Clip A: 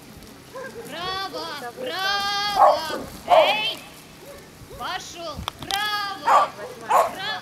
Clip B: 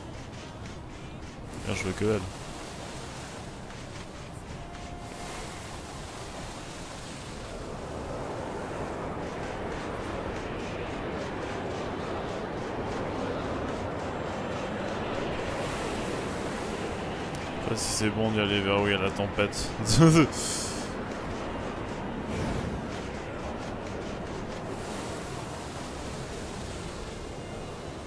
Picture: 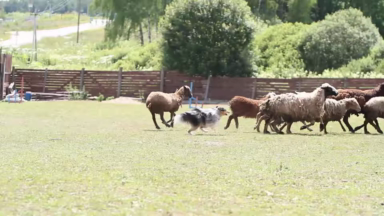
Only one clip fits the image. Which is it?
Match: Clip A